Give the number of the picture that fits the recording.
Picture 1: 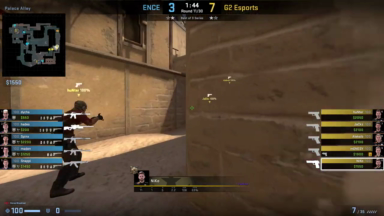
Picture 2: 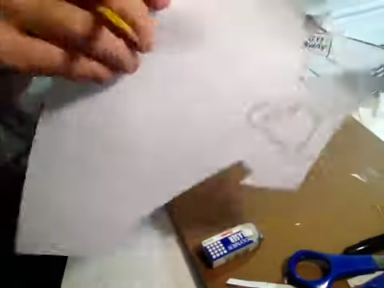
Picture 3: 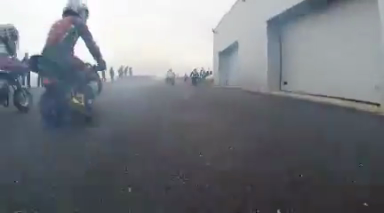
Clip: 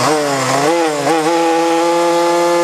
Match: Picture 3